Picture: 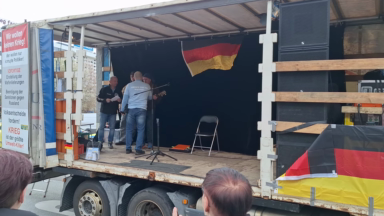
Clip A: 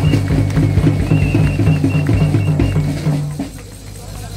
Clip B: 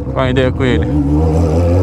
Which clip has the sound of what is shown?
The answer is A